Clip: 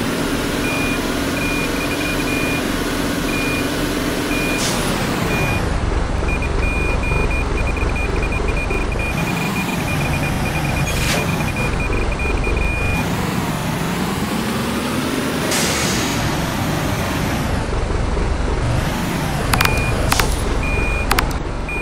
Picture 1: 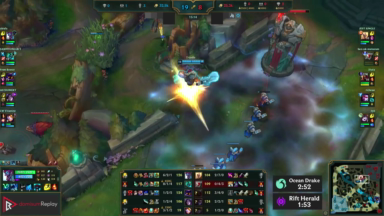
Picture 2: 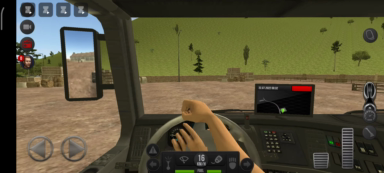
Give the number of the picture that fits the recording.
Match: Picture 2